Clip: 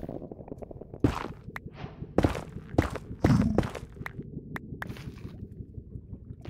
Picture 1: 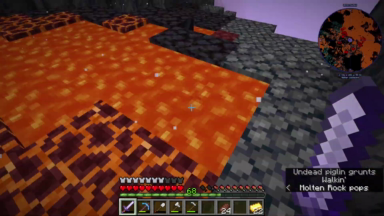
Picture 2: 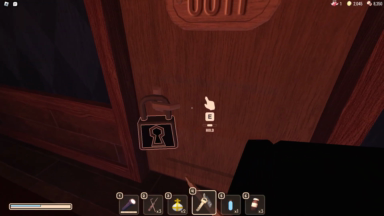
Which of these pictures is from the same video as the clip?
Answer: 1